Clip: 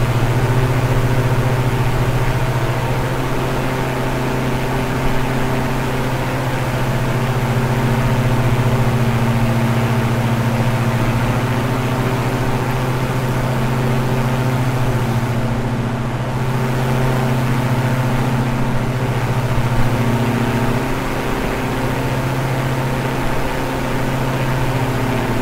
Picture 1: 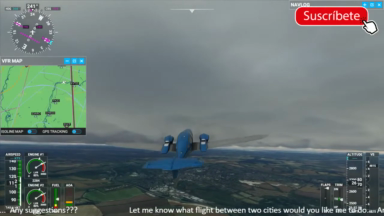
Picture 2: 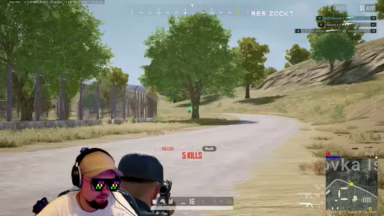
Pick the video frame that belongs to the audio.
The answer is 1